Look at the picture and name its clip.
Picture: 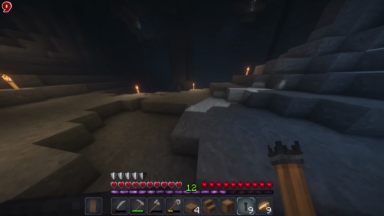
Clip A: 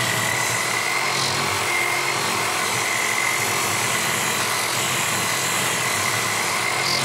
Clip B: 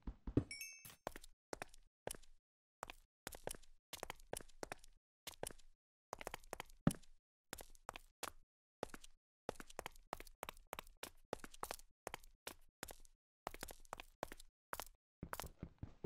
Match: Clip B